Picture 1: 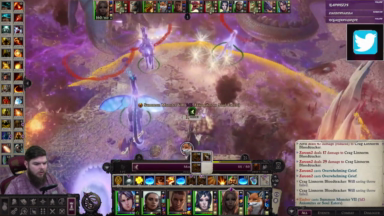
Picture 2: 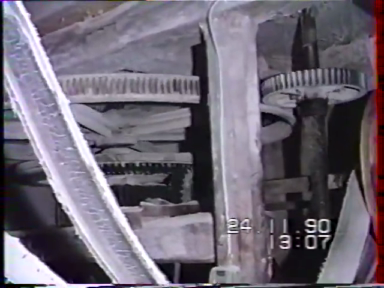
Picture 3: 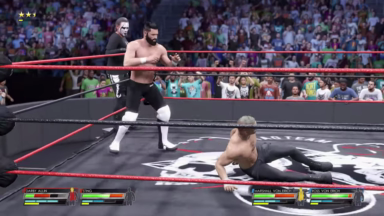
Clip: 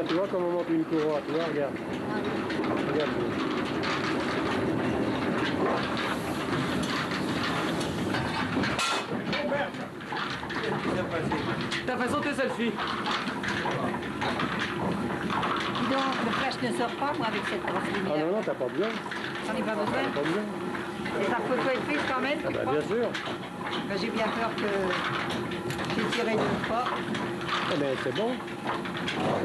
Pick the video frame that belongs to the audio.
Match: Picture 2